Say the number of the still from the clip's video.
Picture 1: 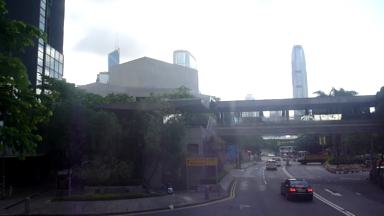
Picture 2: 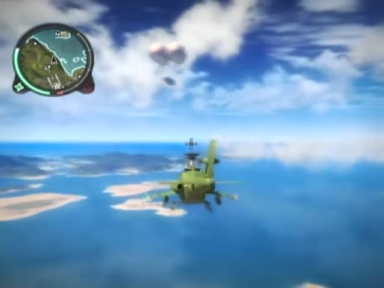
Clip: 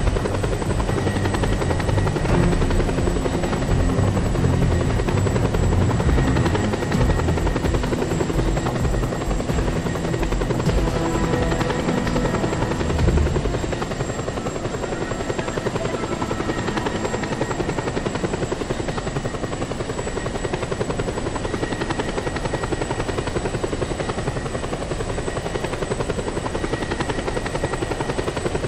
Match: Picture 2